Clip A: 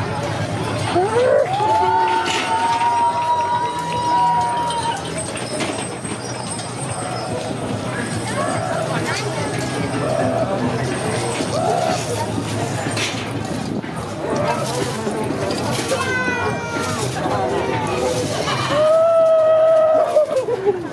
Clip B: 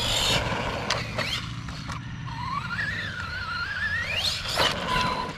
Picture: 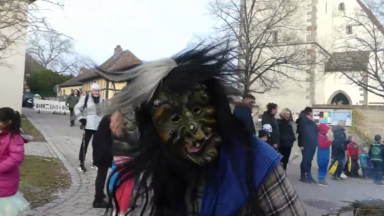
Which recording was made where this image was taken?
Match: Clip A